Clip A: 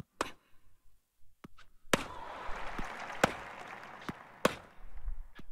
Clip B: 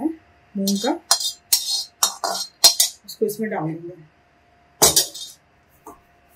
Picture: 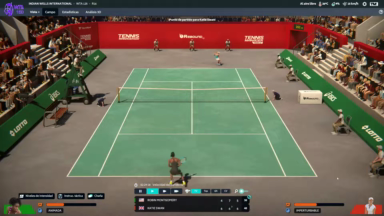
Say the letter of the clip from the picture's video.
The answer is A